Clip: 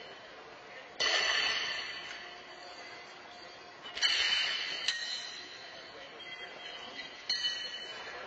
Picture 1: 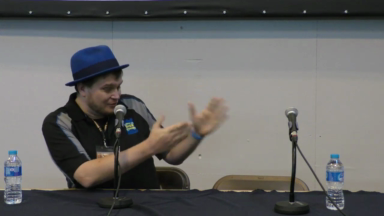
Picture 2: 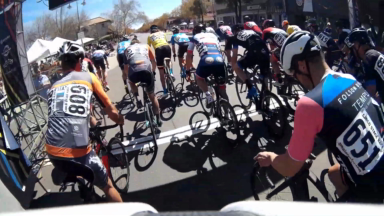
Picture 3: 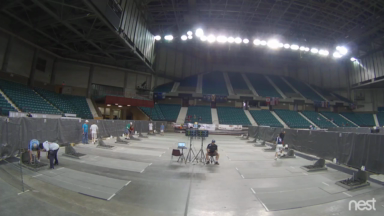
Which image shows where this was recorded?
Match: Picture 3